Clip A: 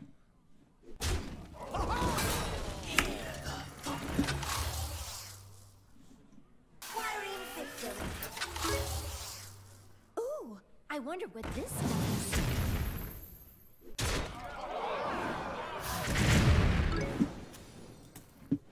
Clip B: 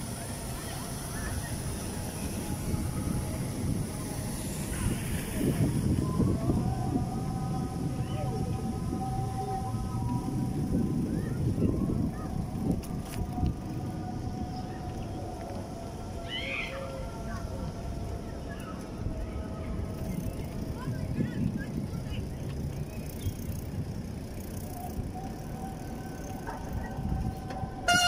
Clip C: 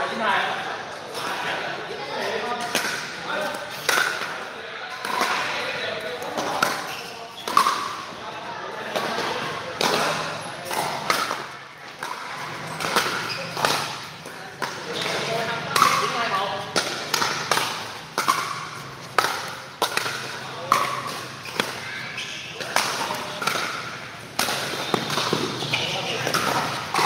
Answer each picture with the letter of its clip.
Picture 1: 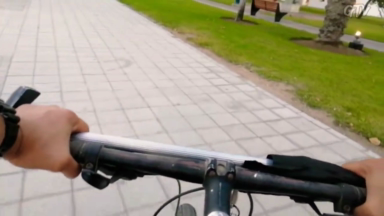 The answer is B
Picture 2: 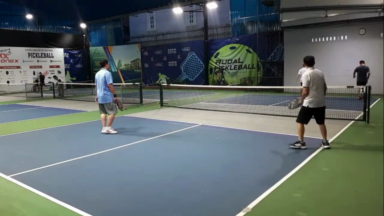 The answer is C